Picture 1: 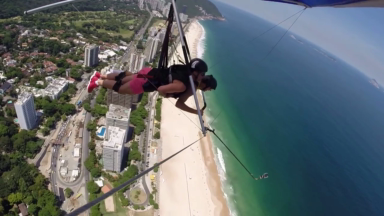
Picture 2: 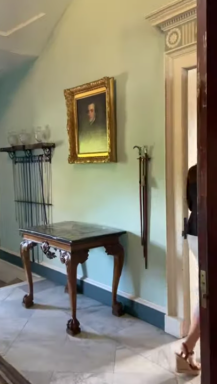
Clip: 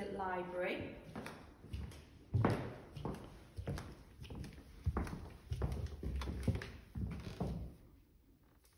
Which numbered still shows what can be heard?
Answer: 2